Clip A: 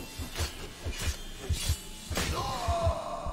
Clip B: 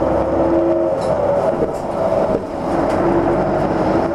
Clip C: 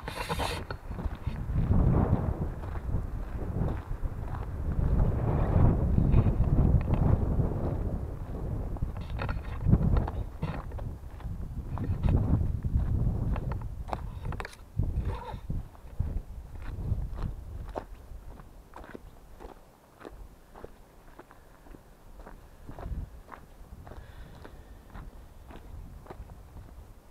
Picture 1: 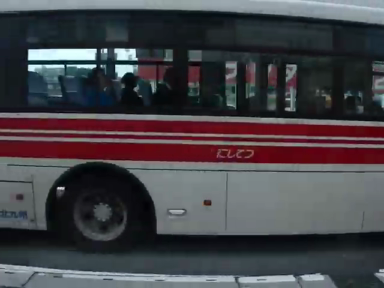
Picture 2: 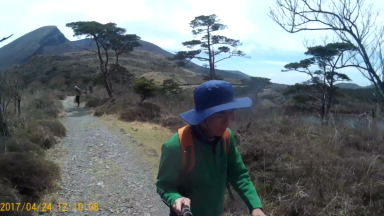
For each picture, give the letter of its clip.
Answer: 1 B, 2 C